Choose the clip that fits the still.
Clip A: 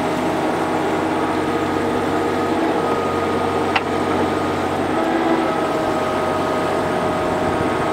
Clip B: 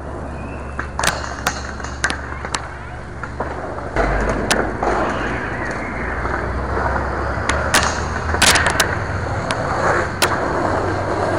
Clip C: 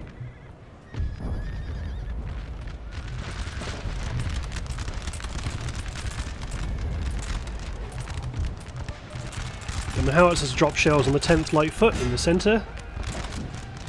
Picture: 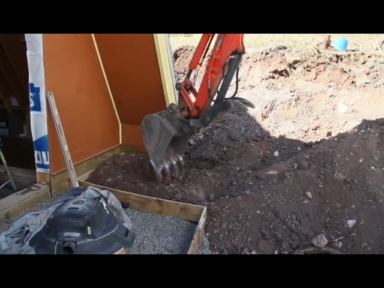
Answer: A